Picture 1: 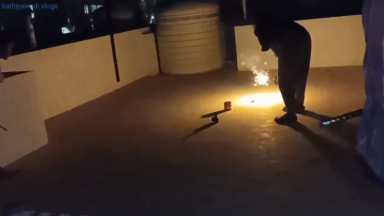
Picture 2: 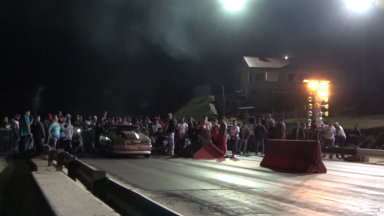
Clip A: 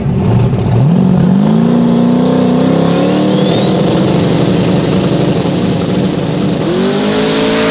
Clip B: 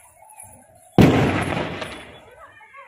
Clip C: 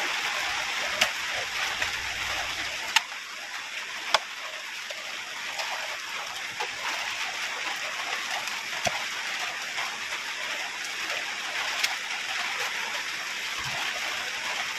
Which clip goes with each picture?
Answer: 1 B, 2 A